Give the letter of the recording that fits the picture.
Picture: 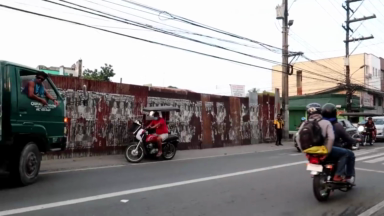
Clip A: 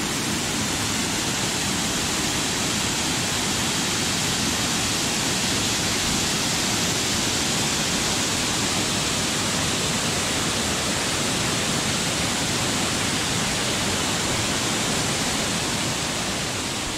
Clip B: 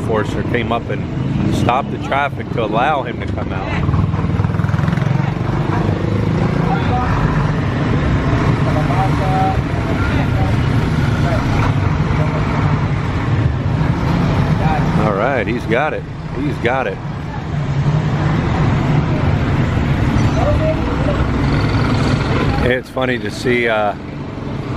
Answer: B